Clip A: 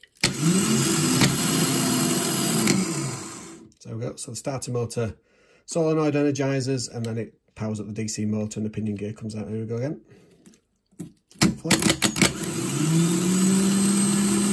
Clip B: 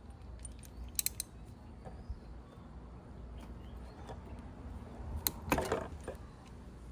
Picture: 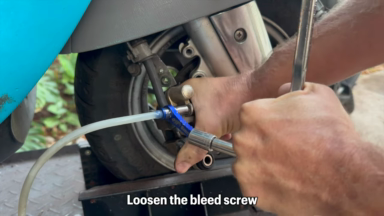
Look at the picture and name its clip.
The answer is B